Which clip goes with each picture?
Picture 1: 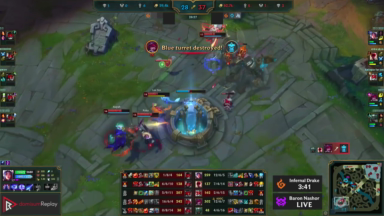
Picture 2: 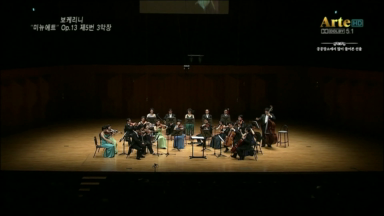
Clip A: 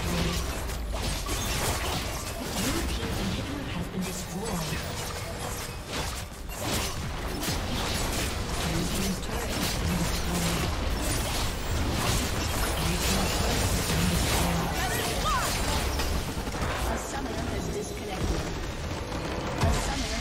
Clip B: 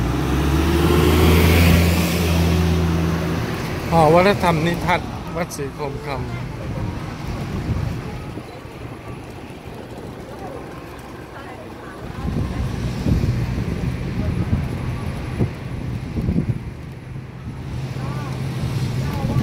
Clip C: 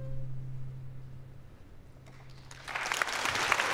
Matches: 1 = A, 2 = C